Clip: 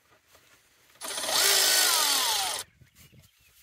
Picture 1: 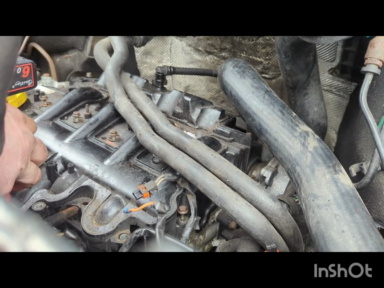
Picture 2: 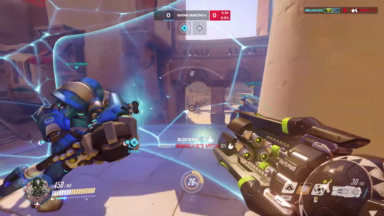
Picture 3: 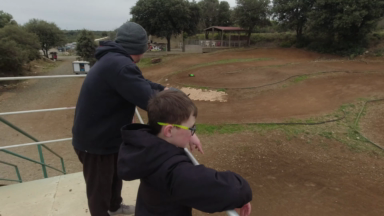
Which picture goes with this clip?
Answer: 1